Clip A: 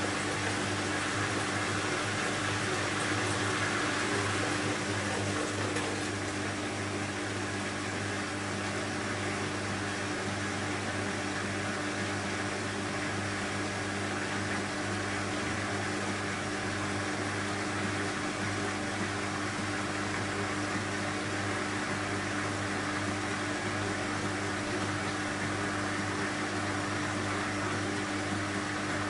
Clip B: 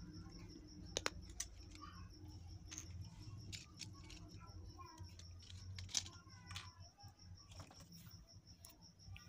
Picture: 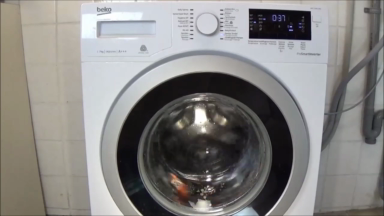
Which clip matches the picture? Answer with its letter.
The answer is A